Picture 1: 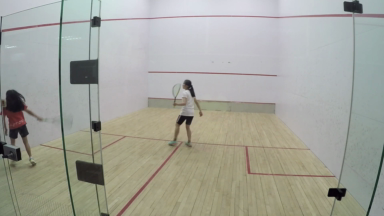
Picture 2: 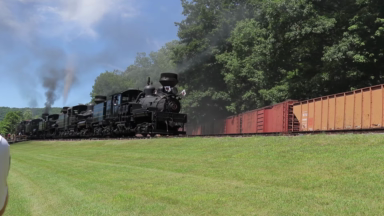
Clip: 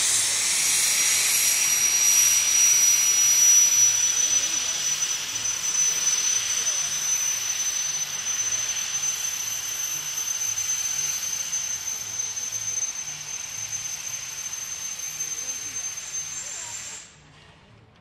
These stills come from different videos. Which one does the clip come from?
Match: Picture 2